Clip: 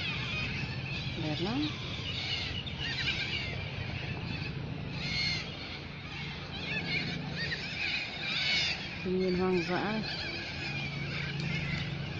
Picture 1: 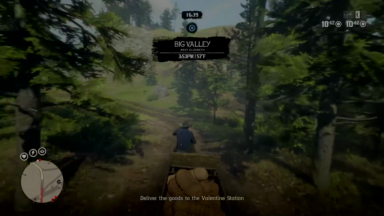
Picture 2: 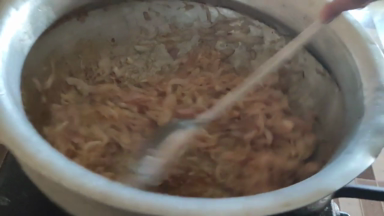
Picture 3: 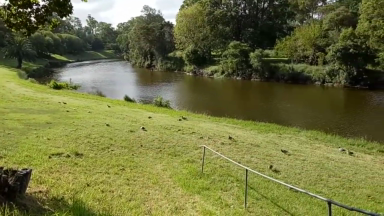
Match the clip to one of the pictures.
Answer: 3